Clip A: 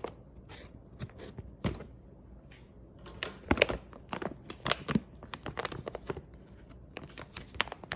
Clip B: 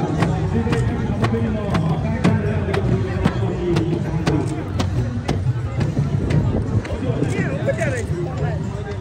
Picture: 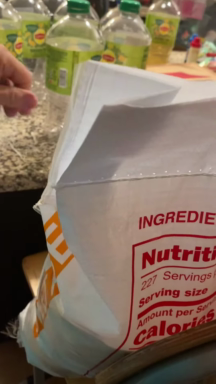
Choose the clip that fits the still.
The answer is A